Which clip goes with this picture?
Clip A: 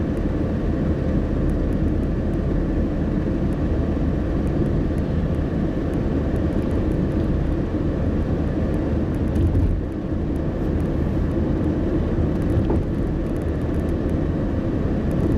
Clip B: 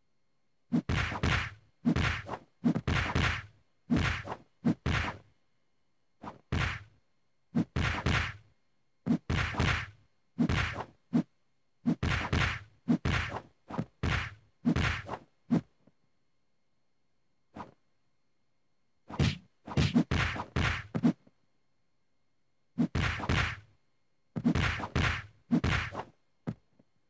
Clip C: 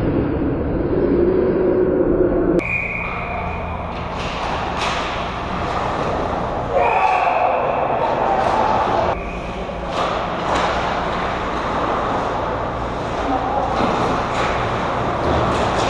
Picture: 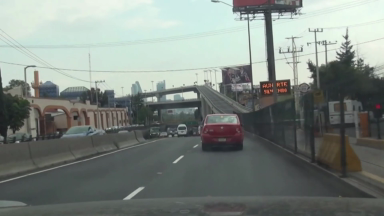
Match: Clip A